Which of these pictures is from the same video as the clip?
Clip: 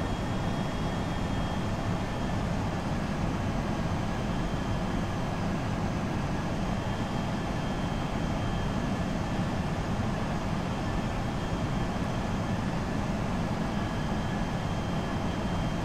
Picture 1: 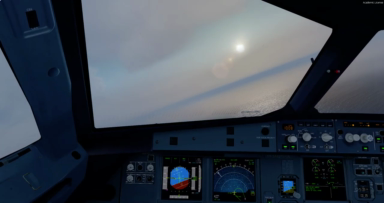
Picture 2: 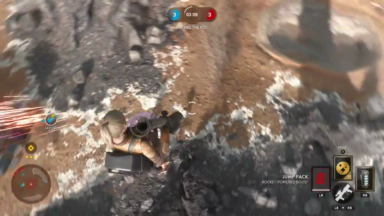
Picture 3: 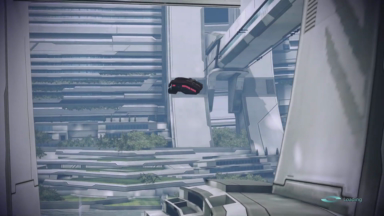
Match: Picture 1